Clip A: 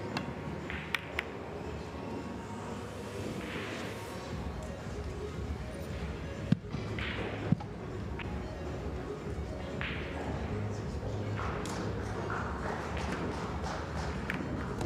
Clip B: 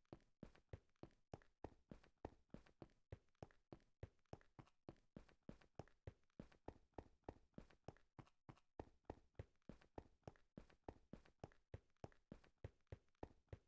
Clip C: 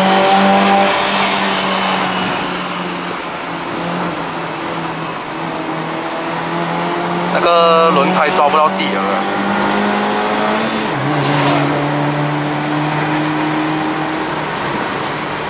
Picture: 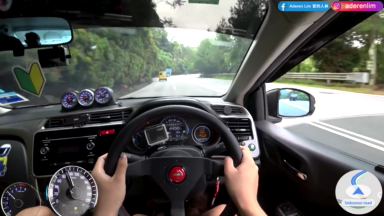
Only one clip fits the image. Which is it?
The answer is C